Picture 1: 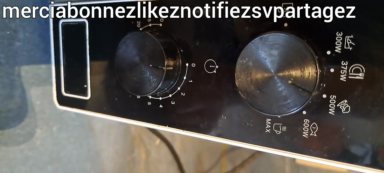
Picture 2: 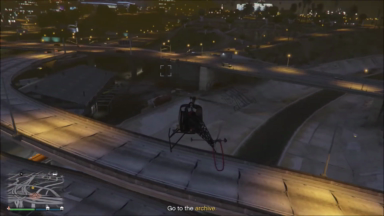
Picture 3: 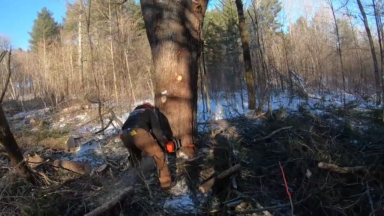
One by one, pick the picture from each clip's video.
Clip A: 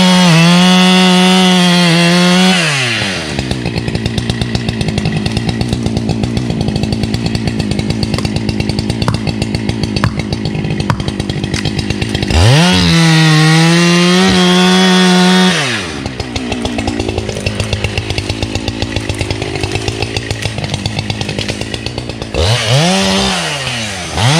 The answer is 3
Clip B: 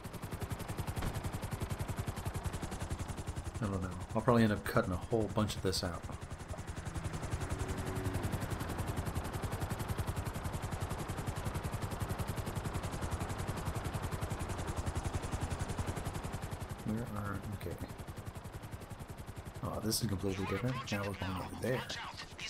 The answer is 2